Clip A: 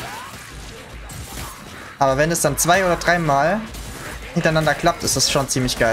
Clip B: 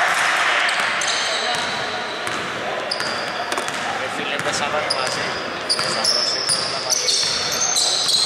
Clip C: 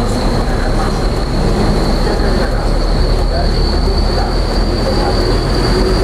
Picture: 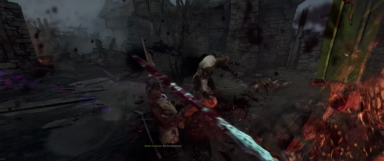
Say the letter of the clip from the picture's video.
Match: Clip A